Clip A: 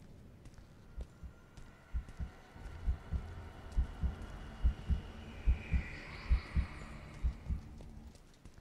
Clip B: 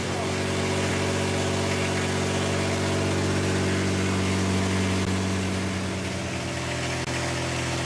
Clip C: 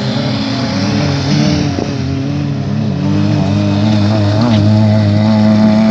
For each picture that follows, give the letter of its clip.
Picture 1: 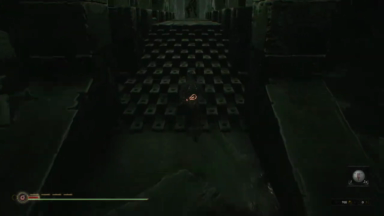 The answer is A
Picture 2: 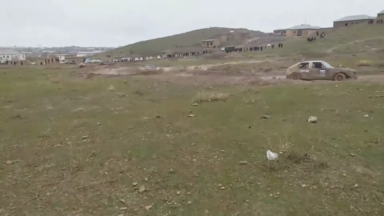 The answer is C